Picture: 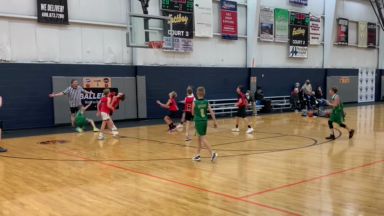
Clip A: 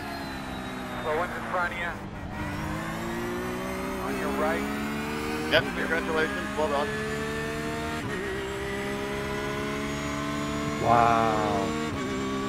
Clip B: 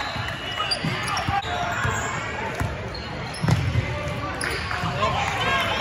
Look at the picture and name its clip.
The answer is B